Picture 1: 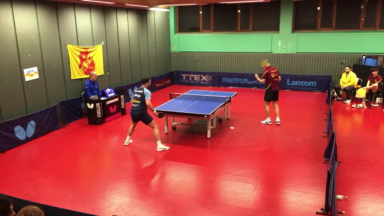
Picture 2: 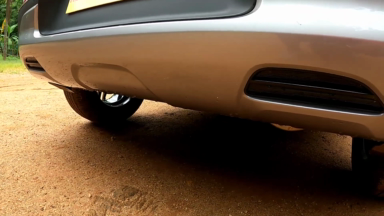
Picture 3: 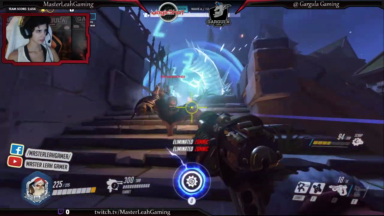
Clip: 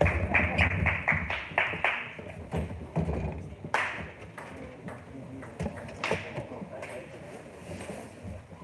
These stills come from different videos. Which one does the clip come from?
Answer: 1